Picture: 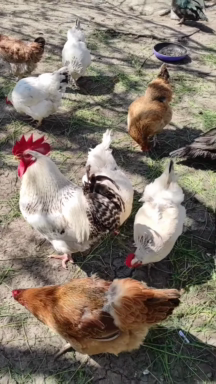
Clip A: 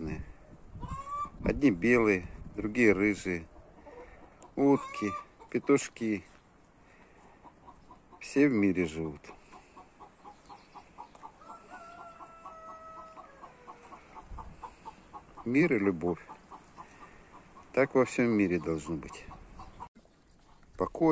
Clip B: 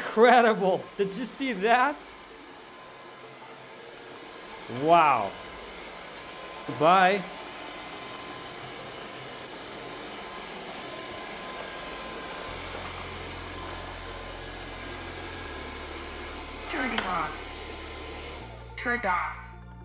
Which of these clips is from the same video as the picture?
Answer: A